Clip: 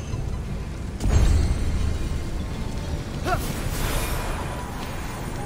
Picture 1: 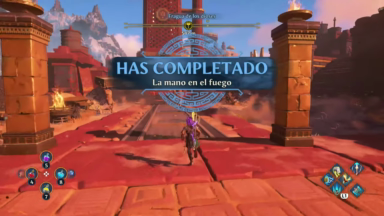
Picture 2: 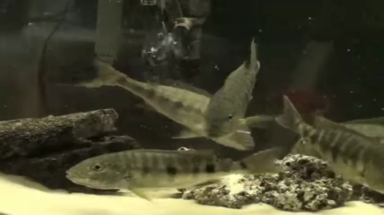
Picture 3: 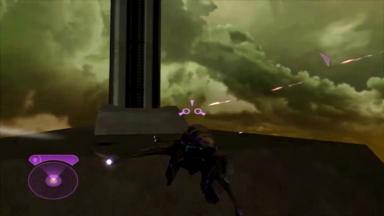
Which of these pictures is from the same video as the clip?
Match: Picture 1